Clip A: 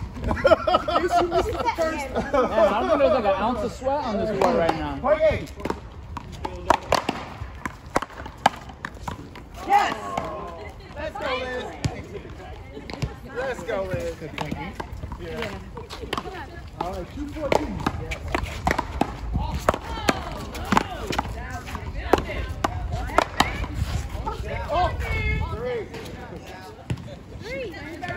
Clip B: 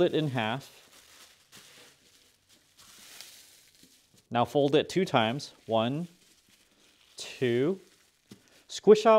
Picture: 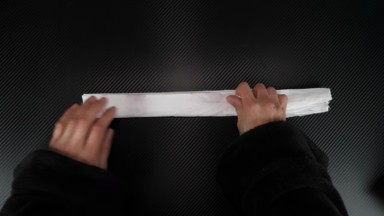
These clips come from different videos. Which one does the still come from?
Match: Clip B